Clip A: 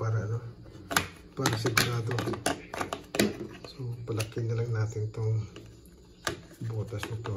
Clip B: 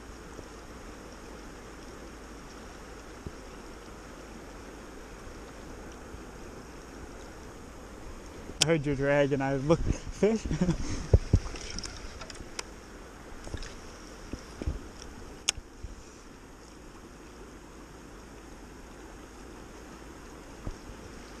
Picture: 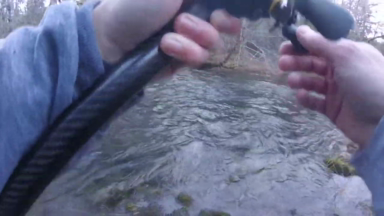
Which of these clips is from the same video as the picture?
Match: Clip B